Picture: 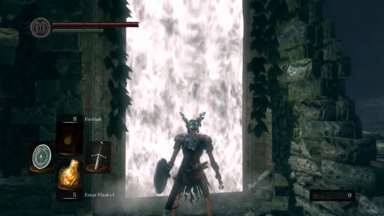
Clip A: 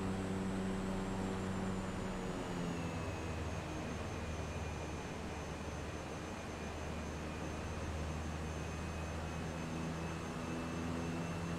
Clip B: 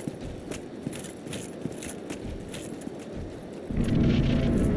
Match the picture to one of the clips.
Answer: B